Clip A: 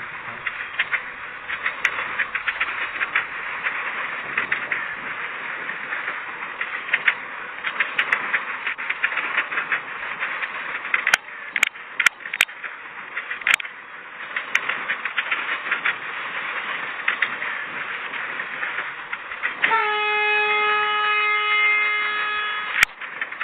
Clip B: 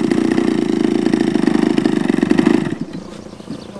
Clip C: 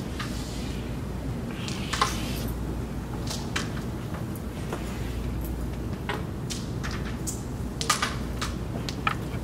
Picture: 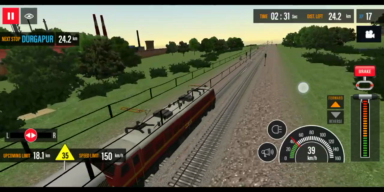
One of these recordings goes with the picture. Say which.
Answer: A